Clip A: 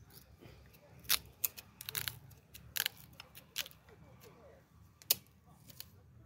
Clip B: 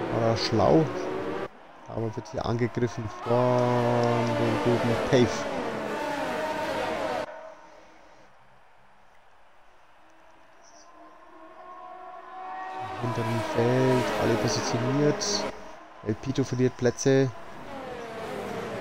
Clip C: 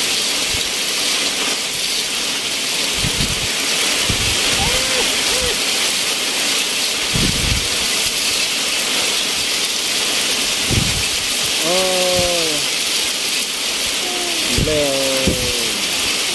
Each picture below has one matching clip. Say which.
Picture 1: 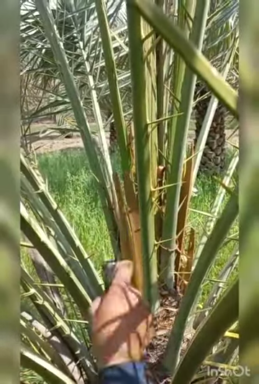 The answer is A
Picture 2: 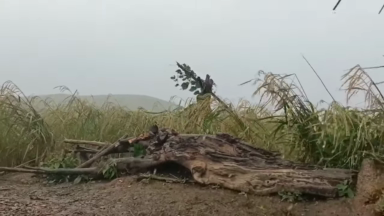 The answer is C